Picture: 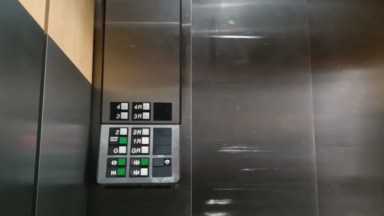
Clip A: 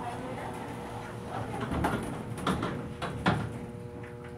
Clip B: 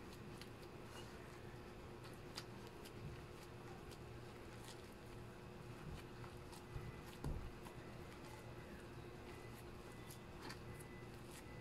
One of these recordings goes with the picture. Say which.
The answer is A